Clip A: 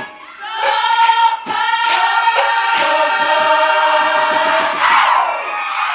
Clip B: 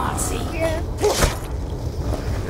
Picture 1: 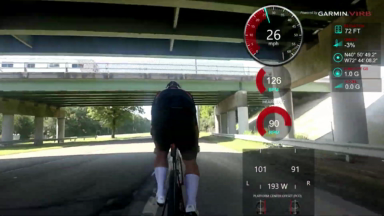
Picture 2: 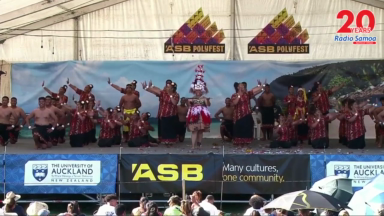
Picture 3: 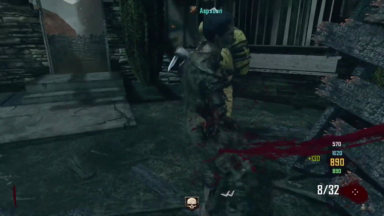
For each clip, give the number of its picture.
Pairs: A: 2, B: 3